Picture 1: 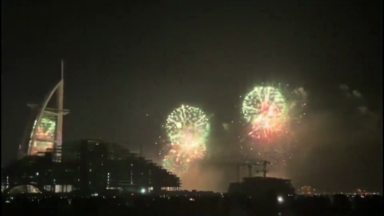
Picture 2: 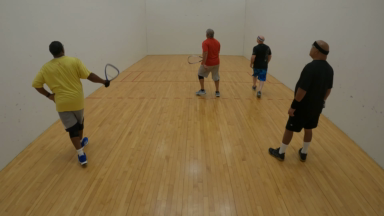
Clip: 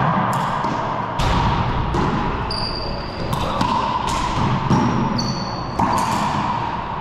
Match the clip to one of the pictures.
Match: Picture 2